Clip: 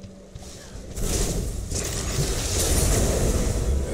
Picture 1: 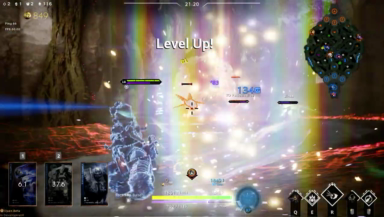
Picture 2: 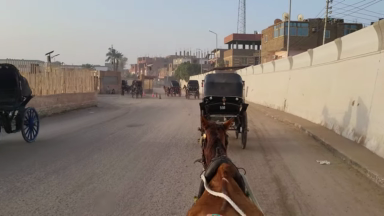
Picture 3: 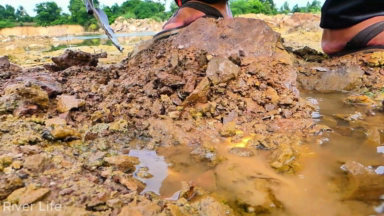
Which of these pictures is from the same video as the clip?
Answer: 1